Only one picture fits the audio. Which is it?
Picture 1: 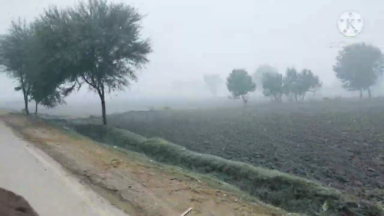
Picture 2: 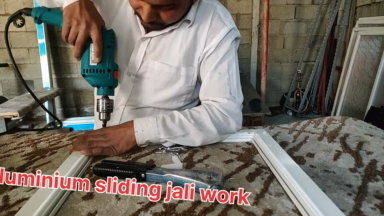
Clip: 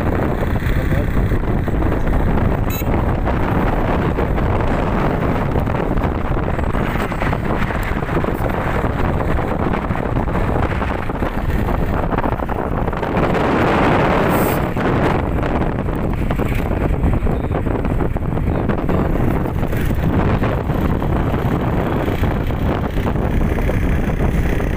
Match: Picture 1